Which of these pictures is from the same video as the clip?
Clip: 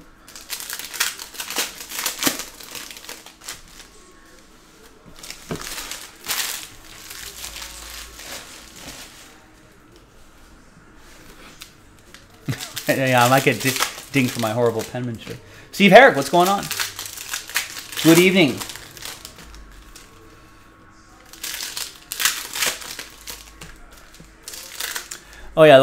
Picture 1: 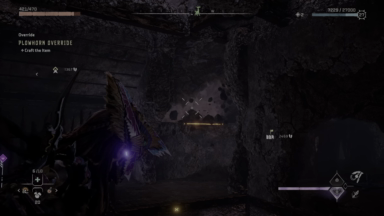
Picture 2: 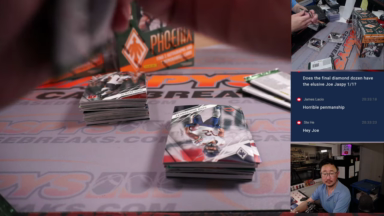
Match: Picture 2